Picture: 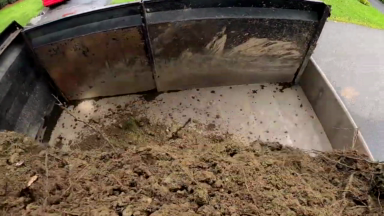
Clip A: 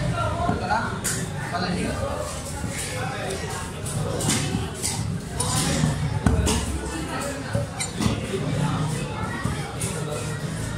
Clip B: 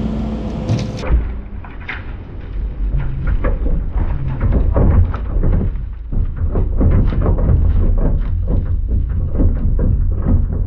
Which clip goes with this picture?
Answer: B